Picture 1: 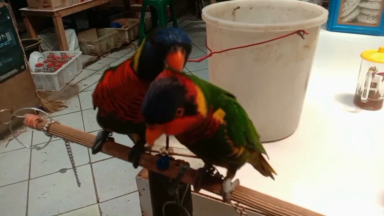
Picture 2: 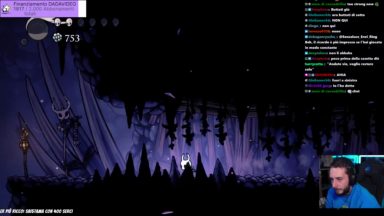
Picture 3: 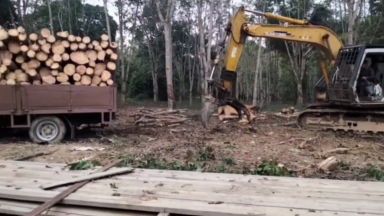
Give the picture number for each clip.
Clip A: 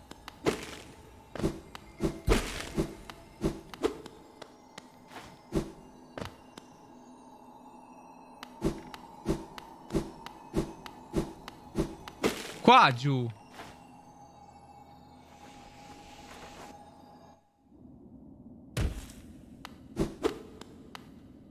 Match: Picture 2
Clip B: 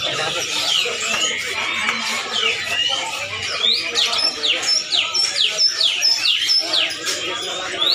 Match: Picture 1